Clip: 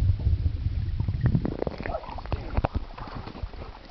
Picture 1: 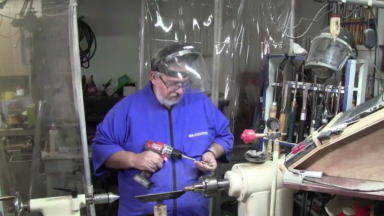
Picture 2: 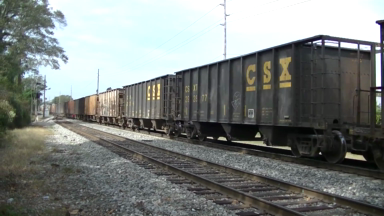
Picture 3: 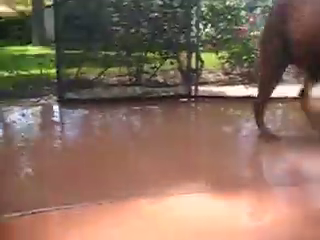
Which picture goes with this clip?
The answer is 3